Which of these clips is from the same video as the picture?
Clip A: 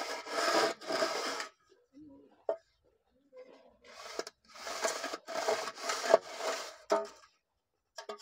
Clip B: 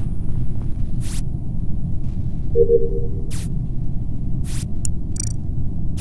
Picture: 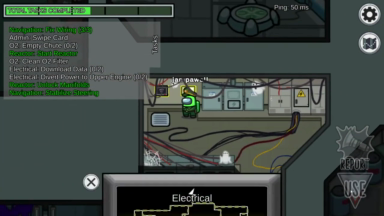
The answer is B